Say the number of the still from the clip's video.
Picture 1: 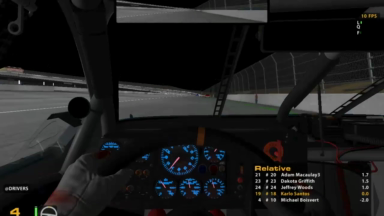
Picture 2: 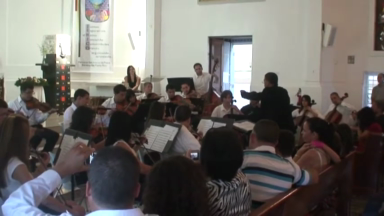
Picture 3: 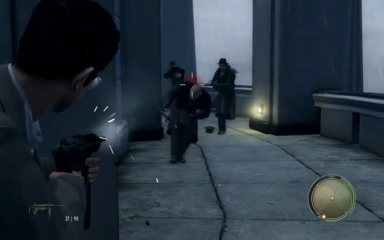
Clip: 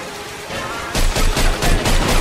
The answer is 3